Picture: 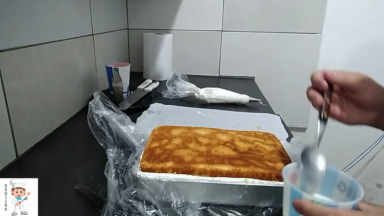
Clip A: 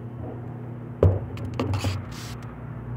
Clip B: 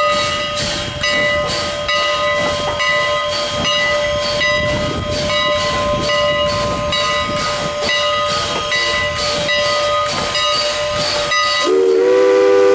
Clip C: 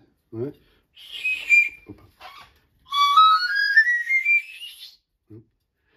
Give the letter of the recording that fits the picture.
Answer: A